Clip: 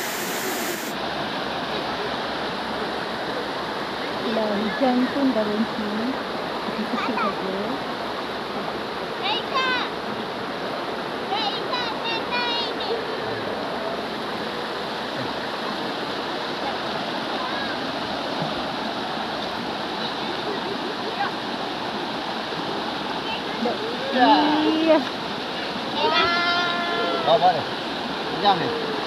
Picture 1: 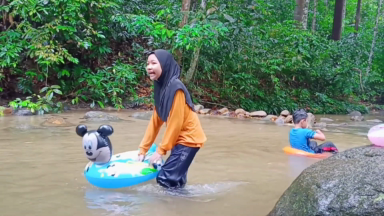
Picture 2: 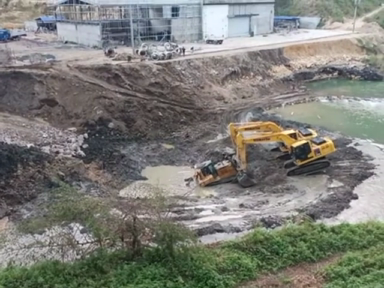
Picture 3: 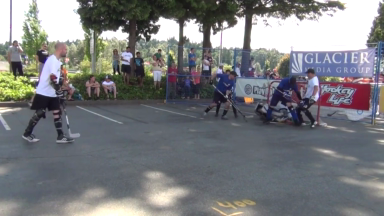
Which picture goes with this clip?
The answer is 1